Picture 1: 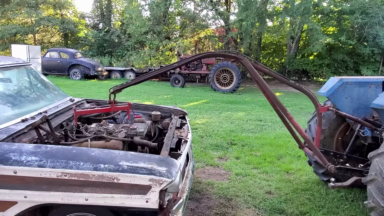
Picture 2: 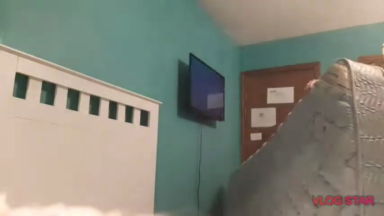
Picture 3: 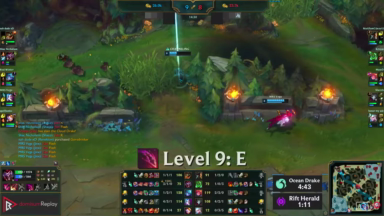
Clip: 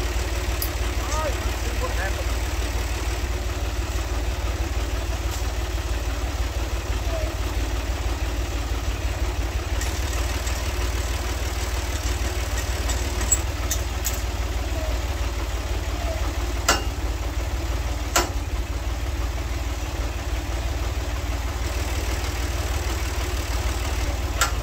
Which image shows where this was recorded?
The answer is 1